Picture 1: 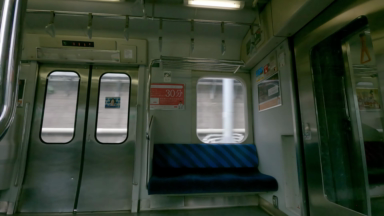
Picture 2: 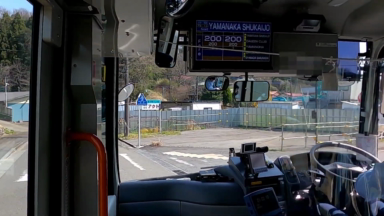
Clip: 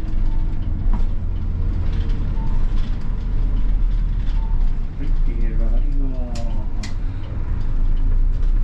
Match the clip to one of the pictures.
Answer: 2